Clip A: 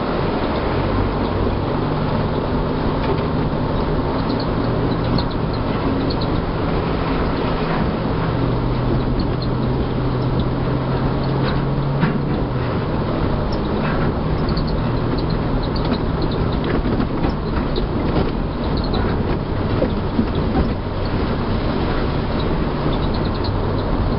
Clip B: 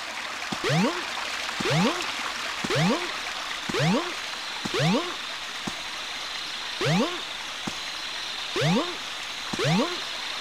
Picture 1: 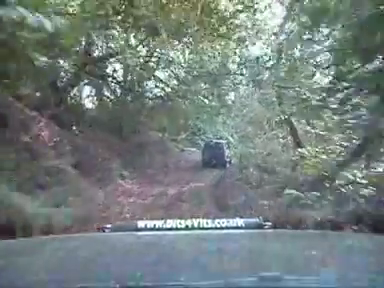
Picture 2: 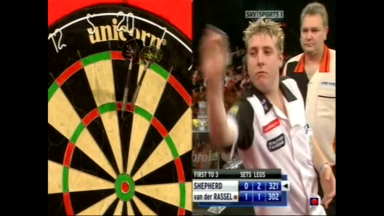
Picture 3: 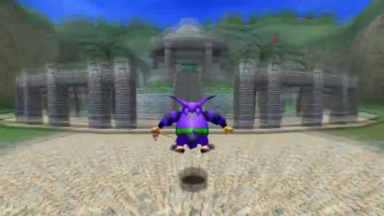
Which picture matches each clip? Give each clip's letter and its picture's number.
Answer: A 1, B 3